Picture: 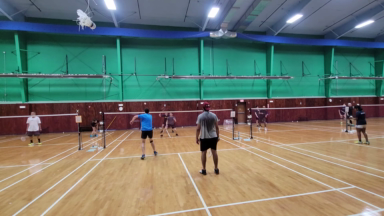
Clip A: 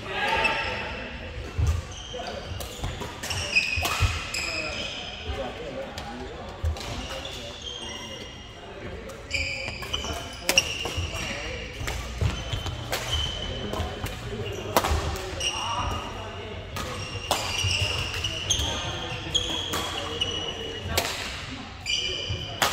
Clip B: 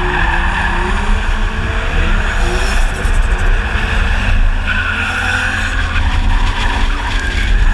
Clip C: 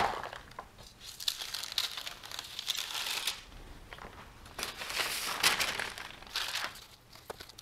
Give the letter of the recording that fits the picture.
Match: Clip A